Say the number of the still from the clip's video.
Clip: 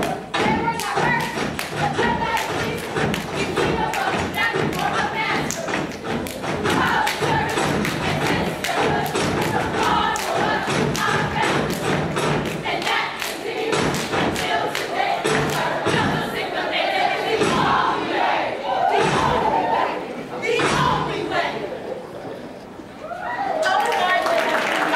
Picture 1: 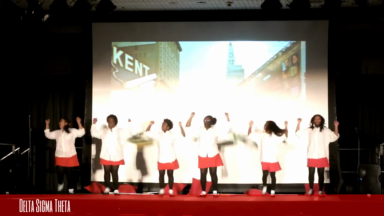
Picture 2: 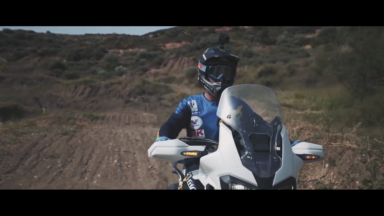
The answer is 1